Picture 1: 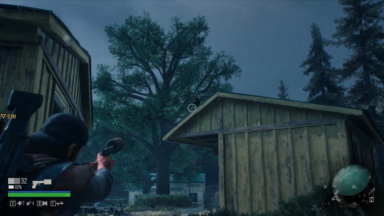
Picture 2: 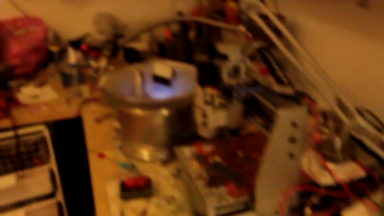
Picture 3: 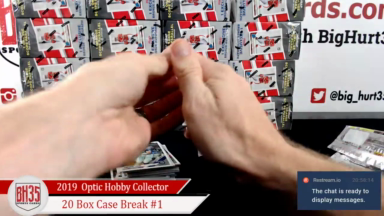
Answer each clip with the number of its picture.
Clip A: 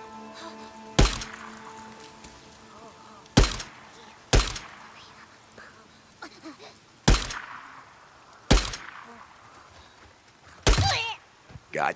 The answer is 1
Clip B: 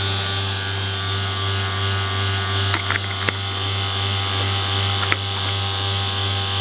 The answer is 2